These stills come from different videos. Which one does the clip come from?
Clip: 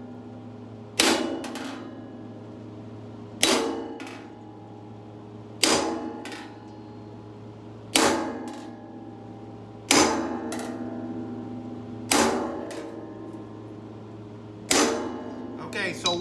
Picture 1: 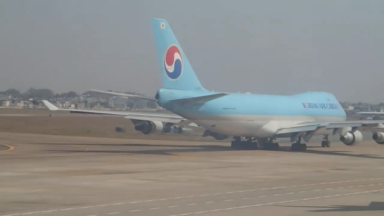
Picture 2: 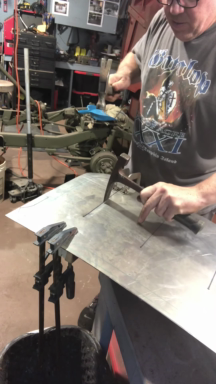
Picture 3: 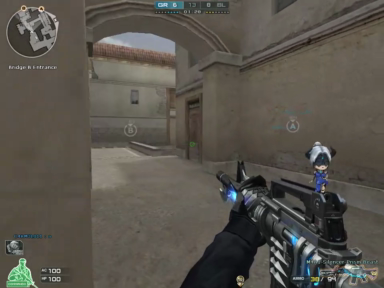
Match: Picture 2